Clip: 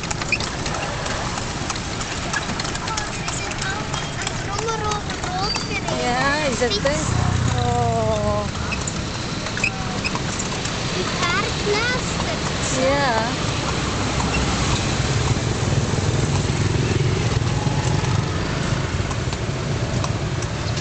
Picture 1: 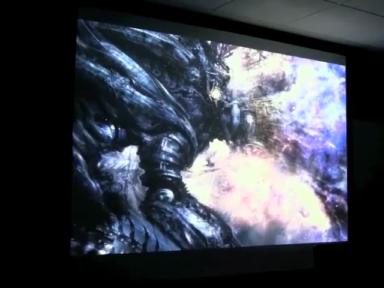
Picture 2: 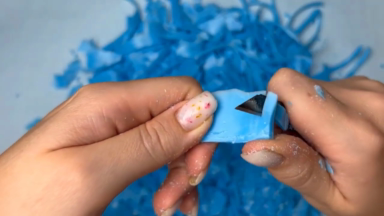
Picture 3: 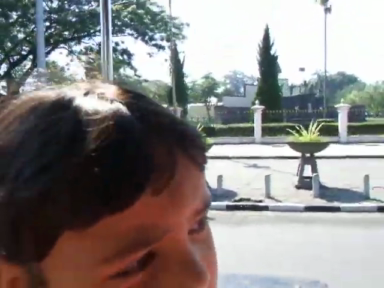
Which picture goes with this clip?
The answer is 3